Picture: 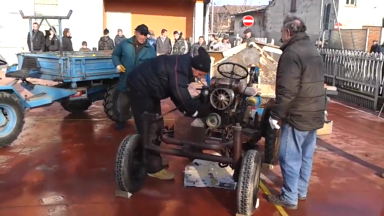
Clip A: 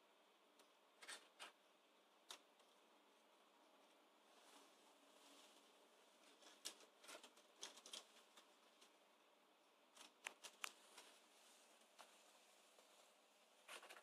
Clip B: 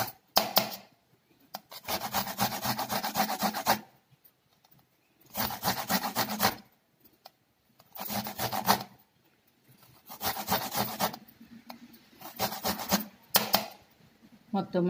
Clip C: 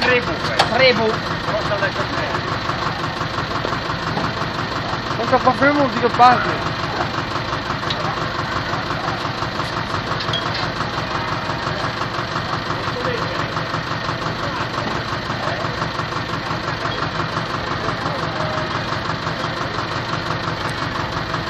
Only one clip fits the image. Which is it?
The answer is C